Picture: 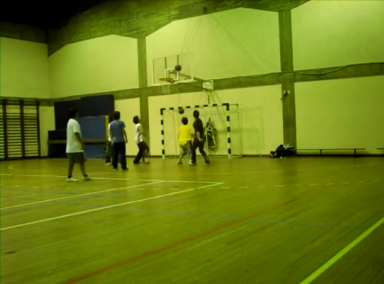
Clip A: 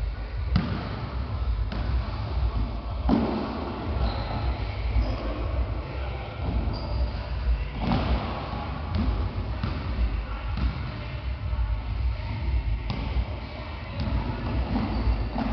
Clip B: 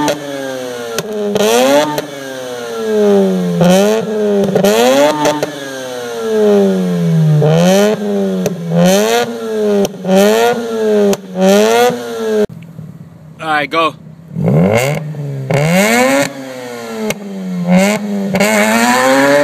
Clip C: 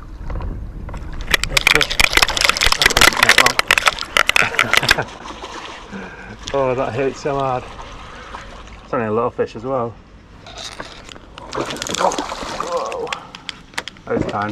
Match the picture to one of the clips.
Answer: A